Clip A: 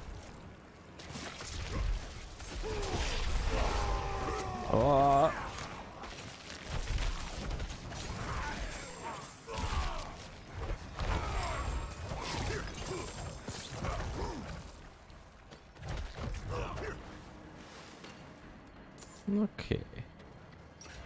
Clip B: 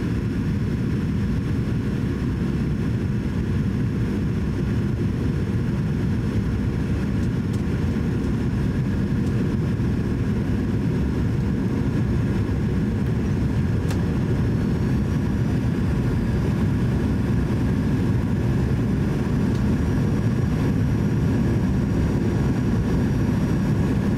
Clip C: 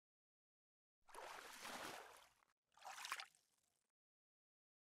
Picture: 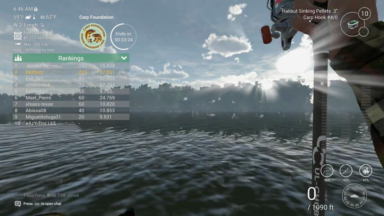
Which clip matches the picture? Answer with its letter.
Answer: C